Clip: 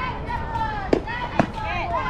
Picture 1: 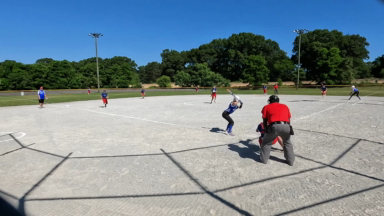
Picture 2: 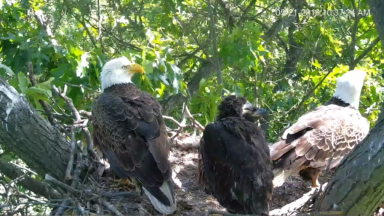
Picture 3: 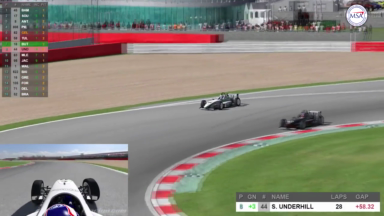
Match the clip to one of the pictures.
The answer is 1